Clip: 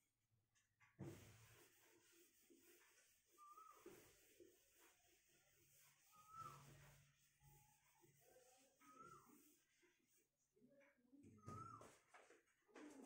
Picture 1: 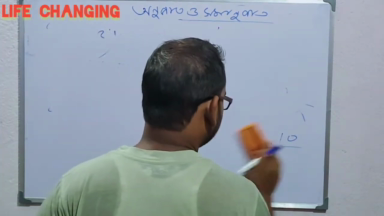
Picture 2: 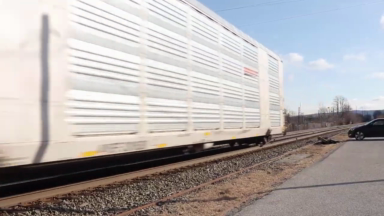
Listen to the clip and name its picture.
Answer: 1